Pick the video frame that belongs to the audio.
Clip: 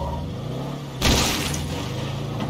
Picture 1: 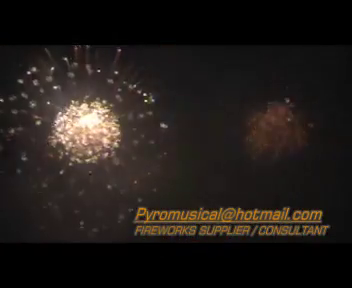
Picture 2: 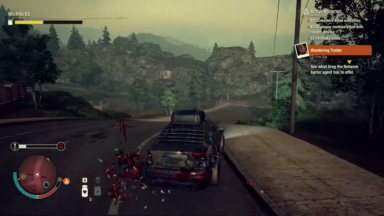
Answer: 2